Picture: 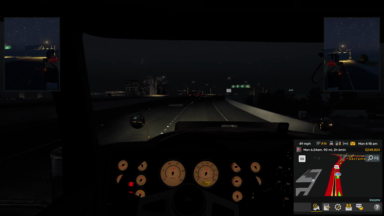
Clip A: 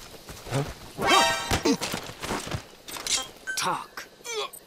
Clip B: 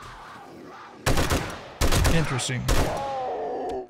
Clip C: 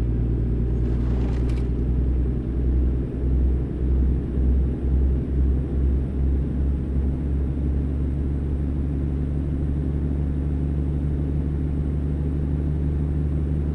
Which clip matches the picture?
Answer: C